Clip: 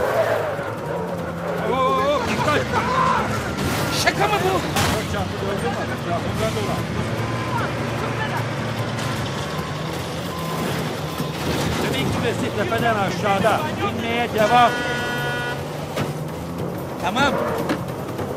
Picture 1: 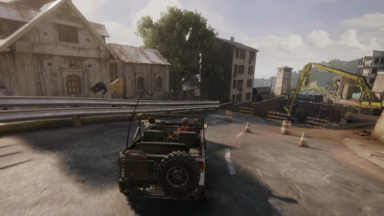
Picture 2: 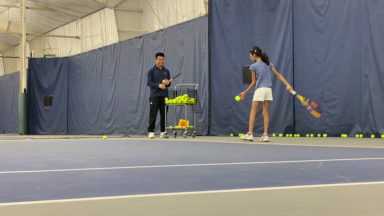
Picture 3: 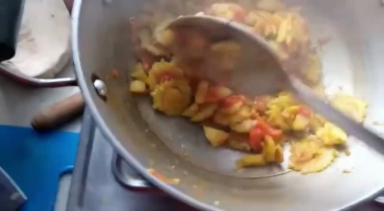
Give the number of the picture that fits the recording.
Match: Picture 1